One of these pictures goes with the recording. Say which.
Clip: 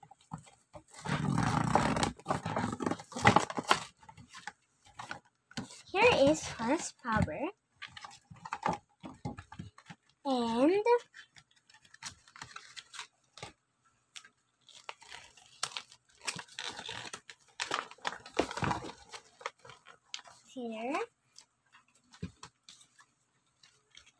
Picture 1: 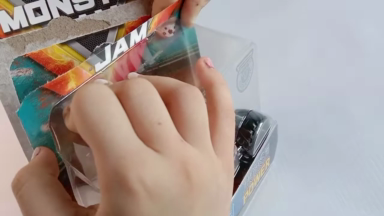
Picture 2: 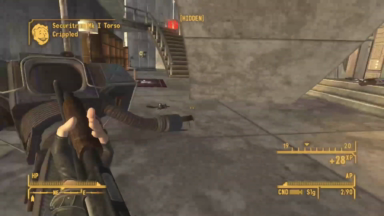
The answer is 1